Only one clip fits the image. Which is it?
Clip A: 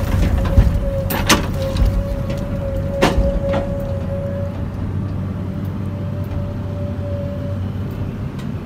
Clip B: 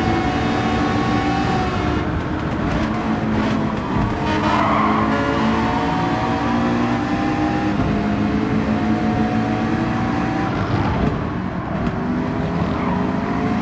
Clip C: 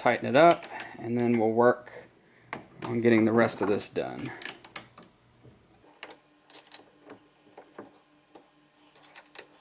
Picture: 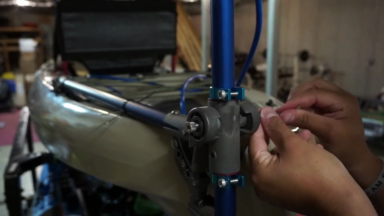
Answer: C